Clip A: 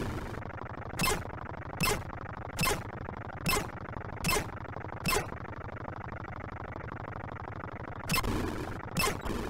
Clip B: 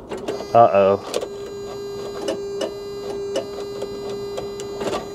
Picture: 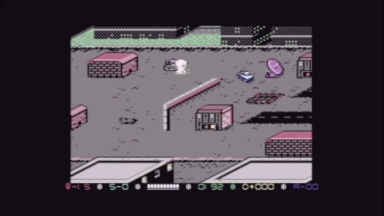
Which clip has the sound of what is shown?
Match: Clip A